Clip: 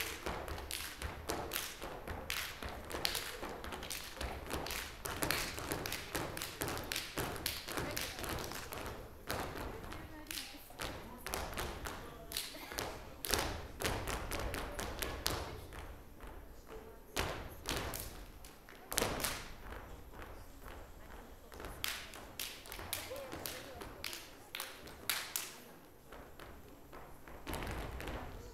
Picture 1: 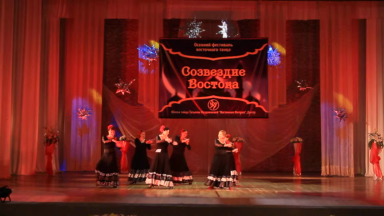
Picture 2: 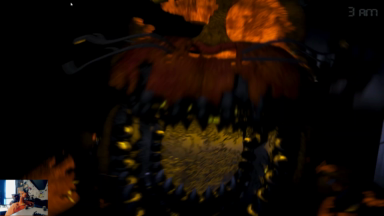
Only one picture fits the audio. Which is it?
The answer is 1